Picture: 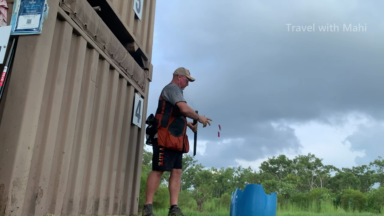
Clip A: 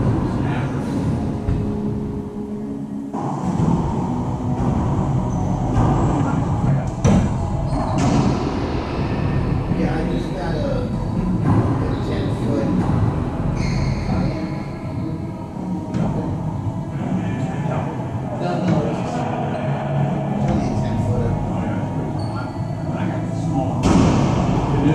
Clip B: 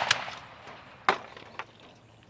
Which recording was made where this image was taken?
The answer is B